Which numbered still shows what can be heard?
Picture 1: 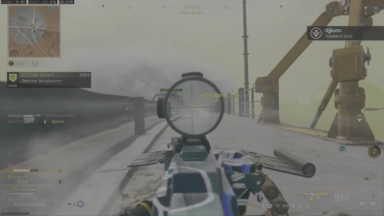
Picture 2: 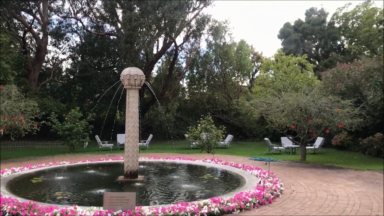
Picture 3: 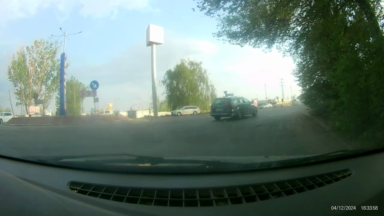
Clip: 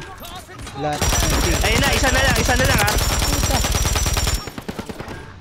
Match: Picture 1